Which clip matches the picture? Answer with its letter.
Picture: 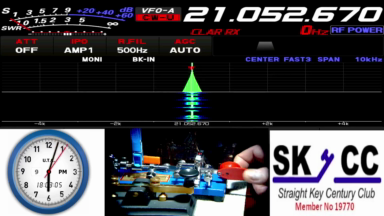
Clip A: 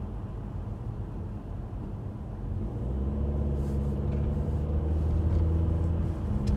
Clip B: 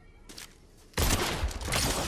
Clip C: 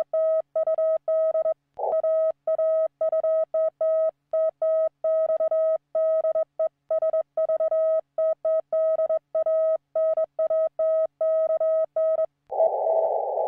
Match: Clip C